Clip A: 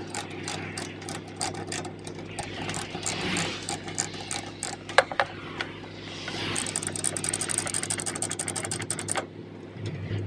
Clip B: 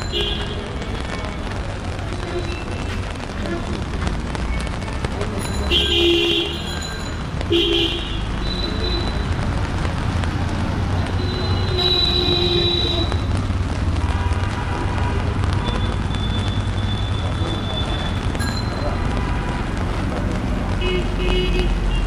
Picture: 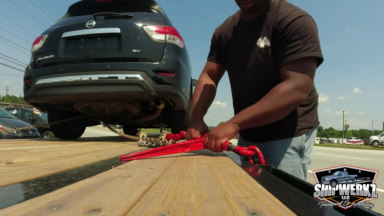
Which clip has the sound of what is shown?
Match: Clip A